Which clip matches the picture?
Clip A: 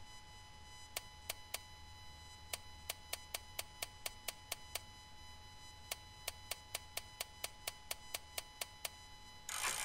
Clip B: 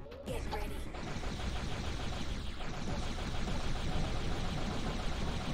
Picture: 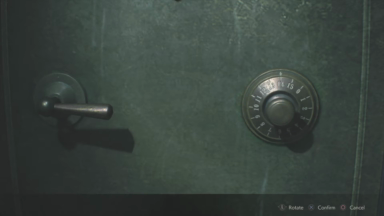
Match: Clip A